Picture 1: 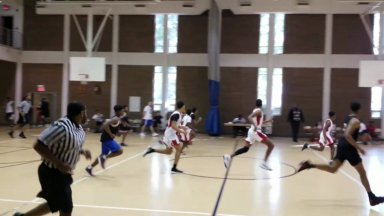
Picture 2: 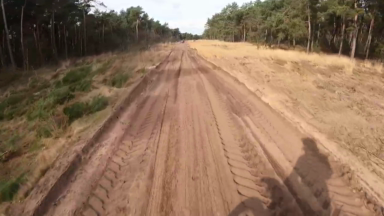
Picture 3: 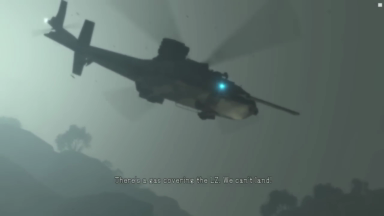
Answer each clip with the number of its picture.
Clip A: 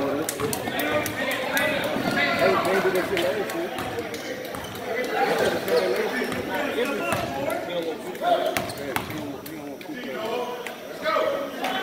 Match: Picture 1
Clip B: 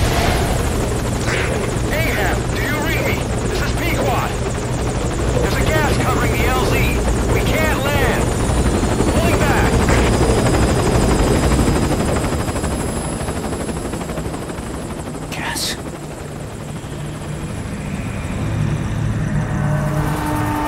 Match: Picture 3